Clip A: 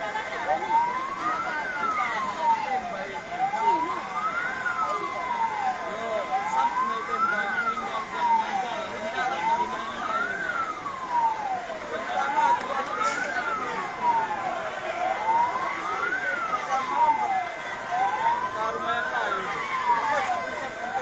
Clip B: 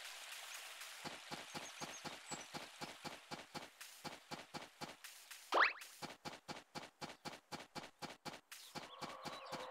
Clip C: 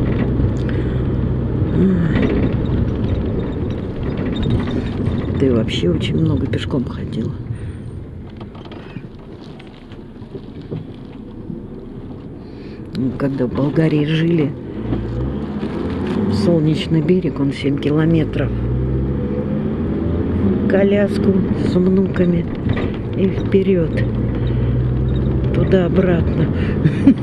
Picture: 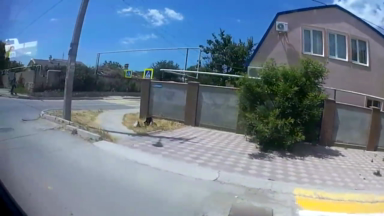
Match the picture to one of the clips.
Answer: C